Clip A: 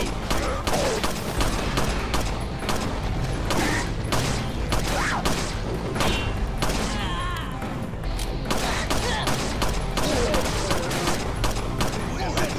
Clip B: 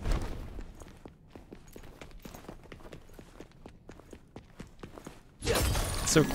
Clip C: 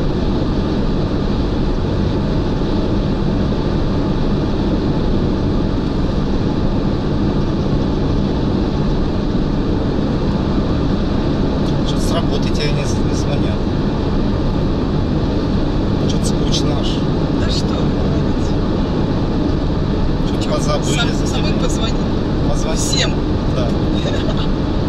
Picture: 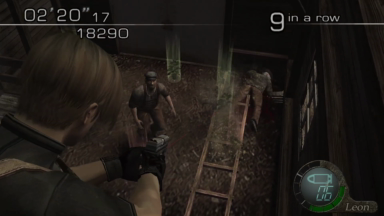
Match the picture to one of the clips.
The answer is A